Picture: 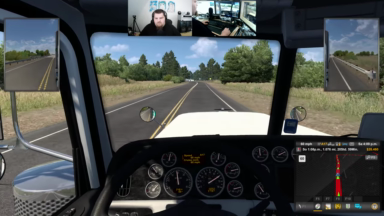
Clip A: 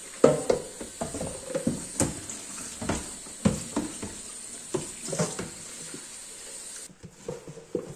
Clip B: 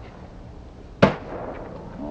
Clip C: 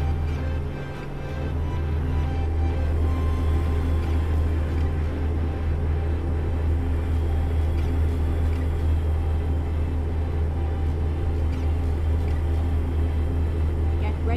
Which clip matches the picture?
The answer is C